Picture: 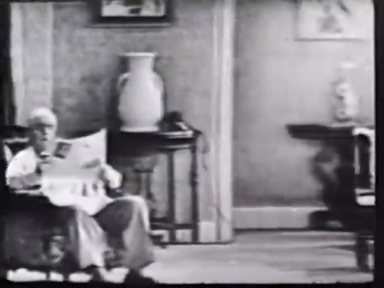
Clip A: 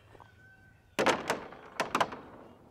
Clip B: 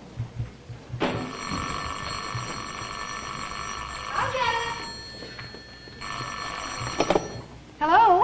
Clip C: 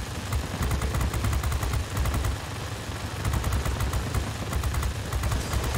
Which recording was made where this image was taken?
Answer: B